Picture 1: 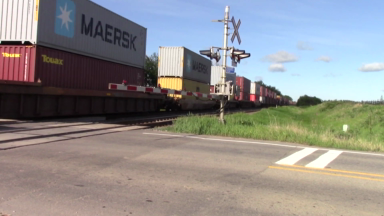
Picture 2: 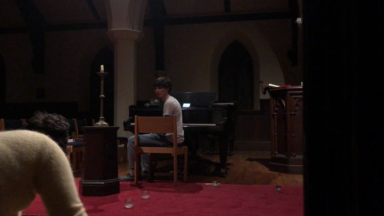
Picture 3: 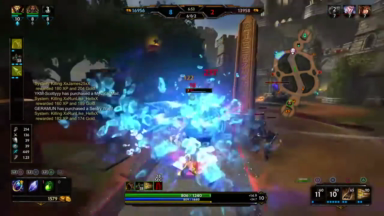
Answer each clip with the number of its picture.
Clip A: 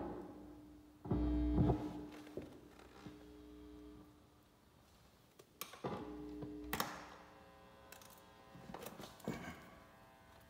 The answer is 2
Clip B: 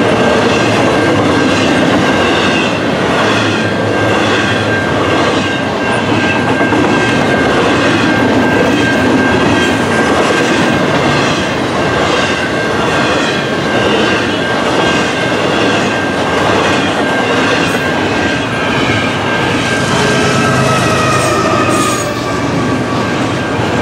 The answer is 1